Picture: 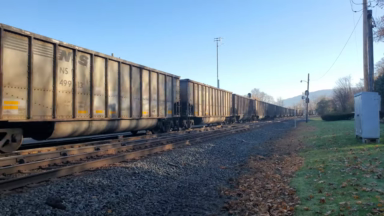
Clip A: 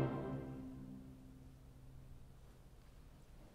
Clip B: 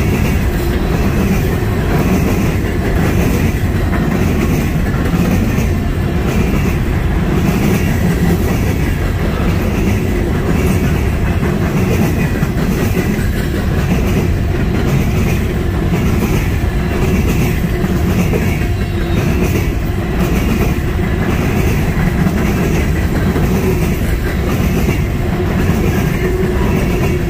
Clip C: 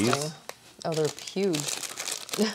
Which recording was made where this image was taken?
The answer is B